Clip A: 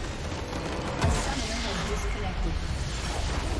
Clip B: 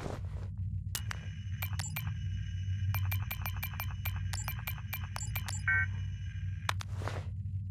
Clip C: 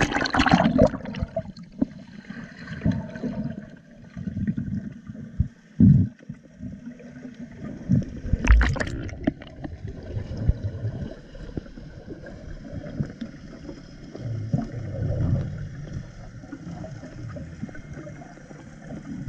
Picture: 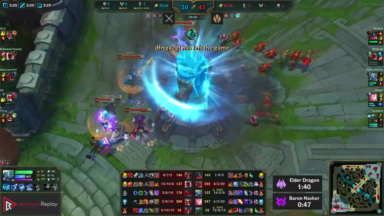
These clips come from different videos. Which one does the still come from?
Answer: A